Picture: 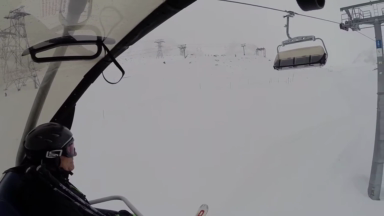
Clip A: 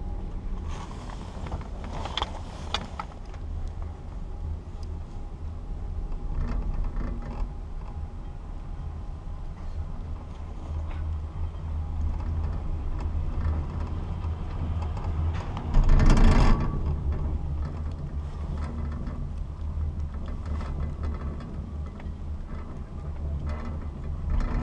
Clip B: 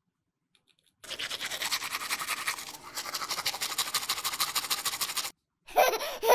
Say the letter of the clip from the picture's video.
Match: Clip A